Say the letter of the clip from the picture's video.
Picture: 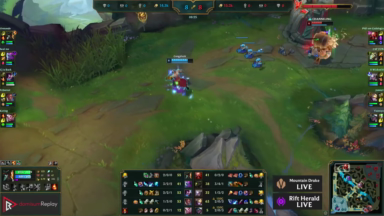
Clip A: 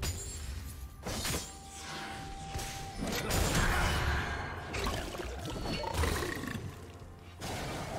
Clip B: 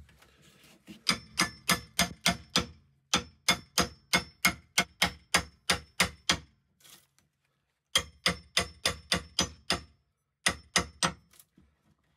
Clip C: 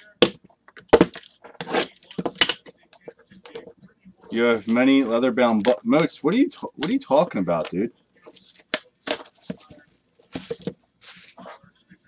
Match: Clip A